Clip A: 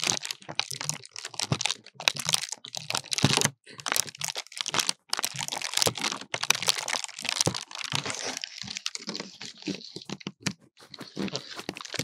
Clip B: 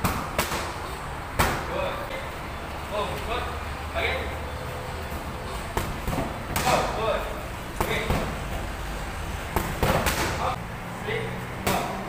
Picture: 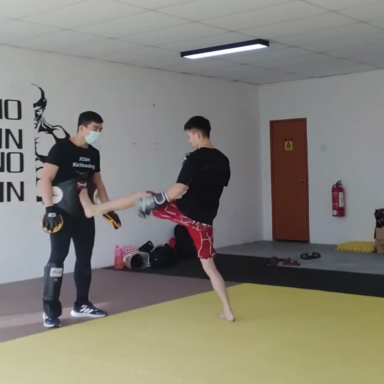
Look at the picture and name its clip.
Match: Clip B